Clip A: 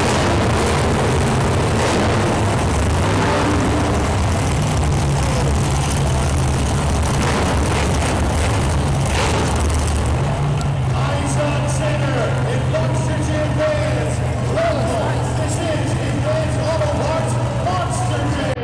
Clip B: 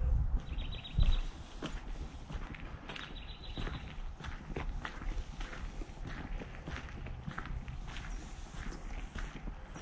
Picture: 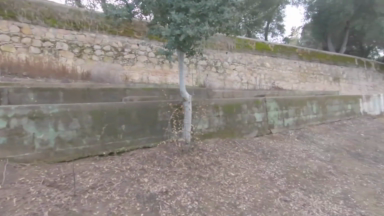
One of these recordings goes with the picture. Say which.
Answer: B